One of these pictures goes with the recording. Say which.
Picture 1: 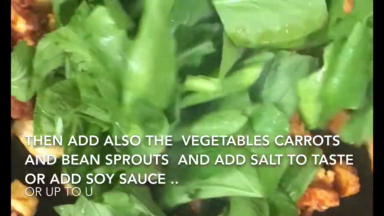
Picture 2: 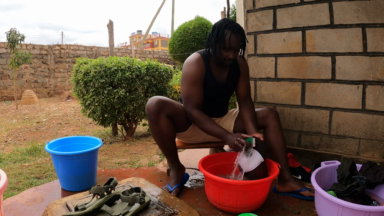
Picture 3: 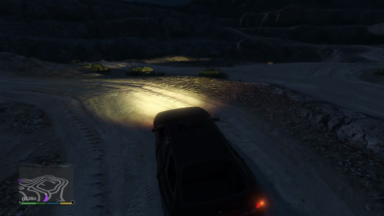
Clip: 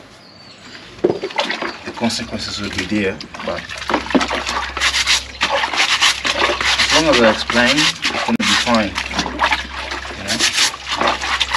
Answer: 2